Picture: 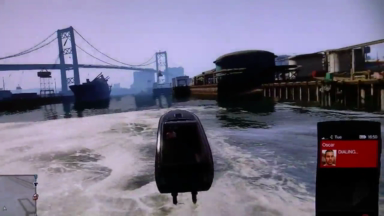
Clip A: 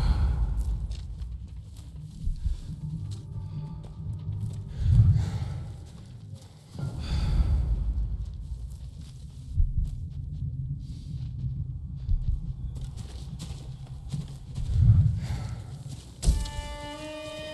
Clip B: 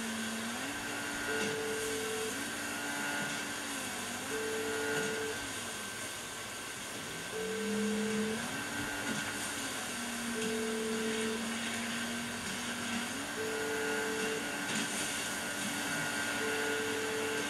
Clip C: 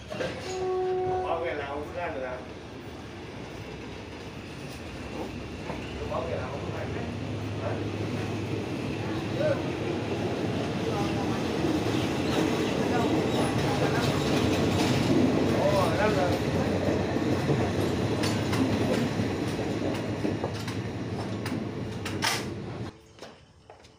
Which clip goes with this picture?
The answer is B